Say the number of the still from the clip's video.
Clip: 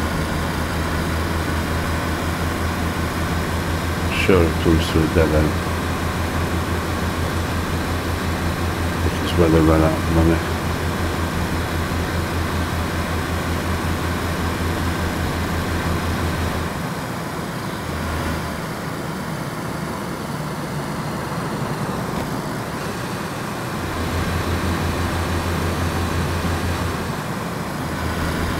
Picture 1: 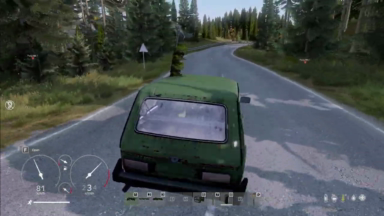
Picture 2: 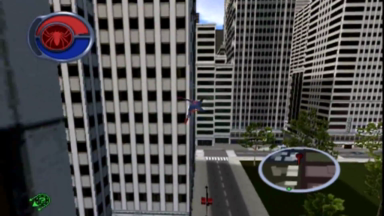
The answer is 1